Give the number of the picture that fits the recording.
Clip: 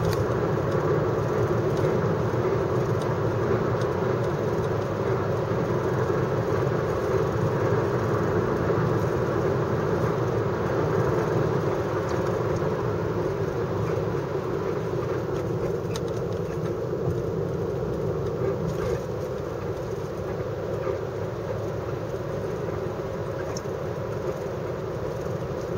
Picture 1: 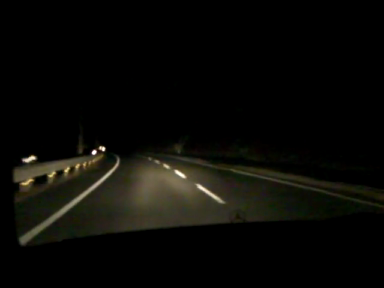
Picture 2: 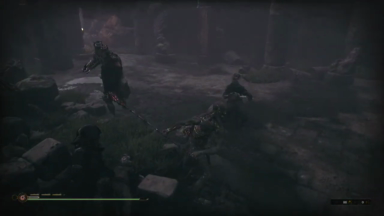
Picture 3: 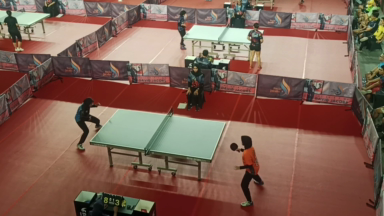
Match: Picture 1